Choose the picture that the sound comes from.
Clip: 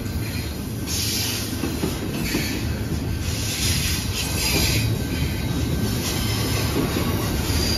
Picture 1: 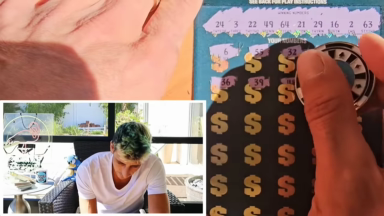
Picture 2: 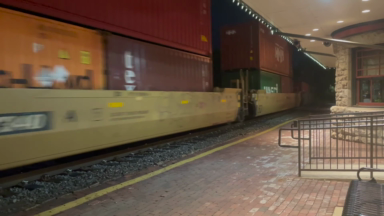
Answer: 2